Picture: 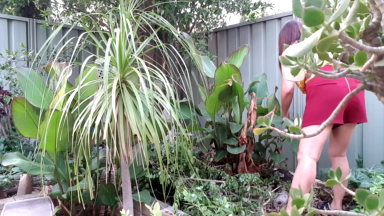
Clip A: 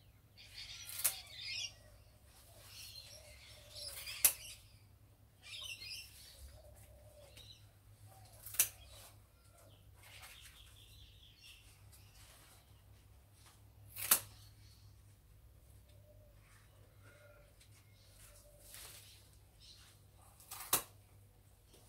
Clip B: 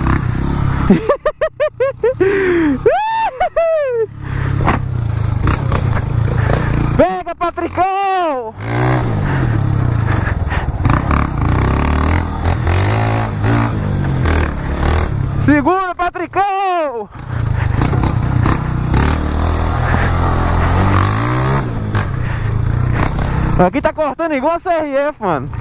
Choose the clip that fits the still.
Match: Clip A